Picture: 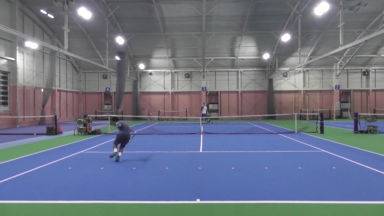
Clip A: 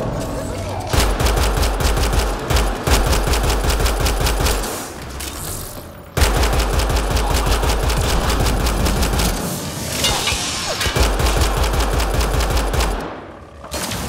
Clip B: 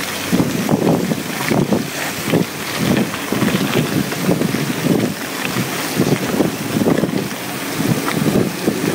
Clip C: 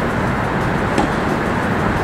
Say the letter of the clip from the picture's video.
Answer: C